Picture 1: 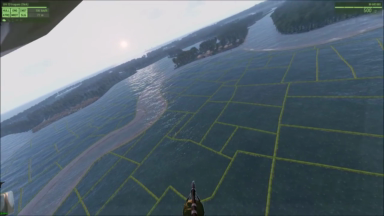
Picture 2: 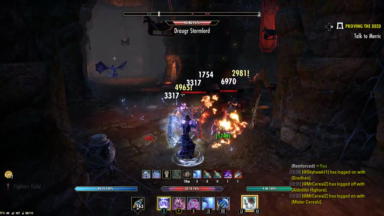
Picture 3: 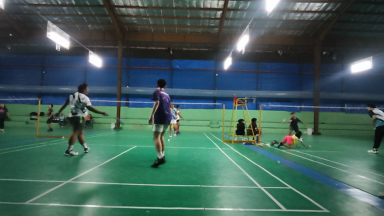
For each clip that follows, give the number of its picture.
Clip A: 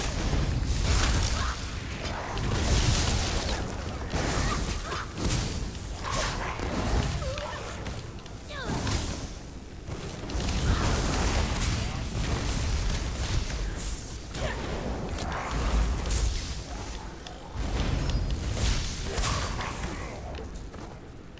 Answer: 2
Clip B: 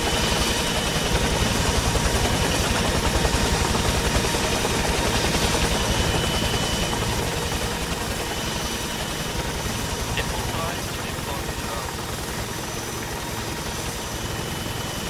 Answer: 1